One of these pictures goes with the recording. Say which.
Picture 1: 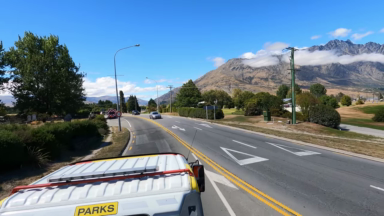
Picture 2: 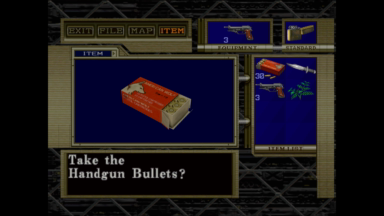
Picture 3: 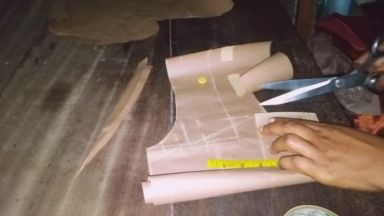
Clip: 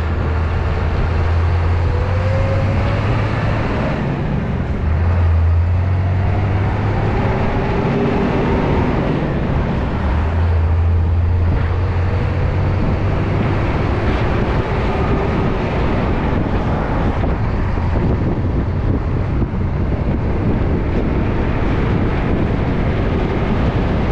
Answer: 1